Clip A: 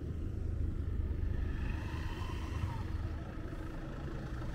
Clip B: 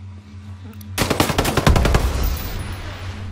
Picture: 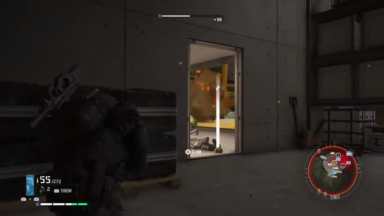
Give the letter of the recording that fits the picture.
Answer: B